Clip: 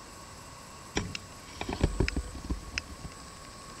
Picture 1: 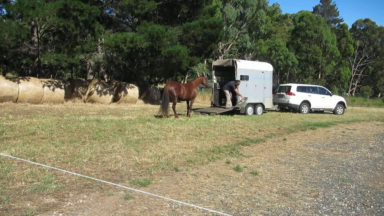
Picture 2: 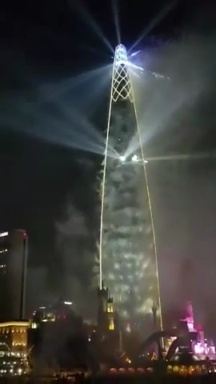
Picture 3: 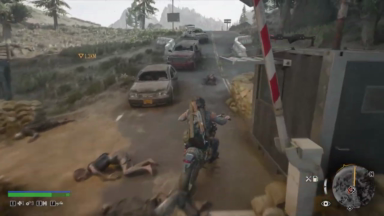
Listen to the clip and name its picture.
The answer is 1